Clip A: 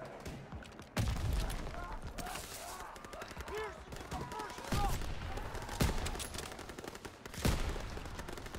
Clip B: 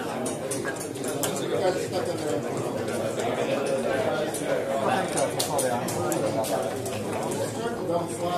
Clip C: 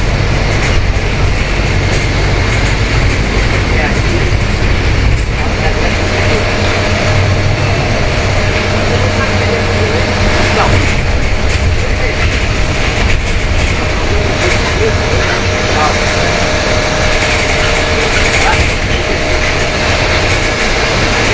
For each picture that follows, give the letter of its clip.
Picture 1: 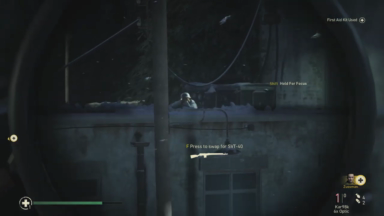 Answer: A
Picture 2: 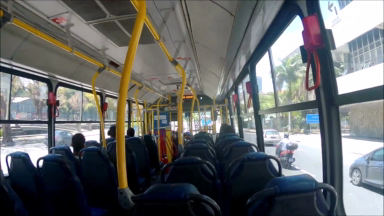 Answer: C